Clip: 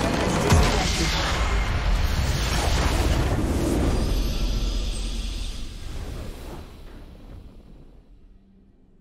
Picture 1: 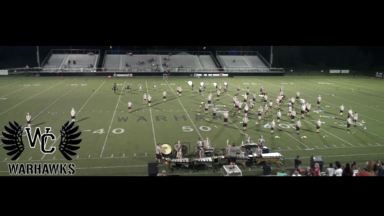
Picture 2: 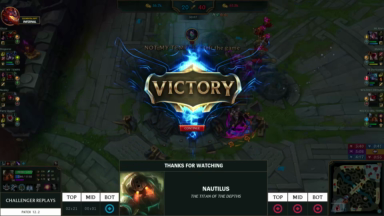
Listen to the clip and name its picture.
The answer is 2